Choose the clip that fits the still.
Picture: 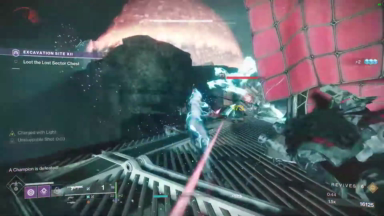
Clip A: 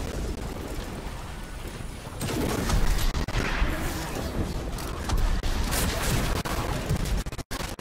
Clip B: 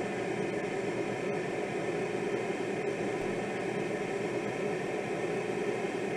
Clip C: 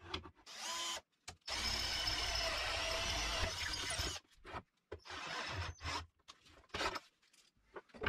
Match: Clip A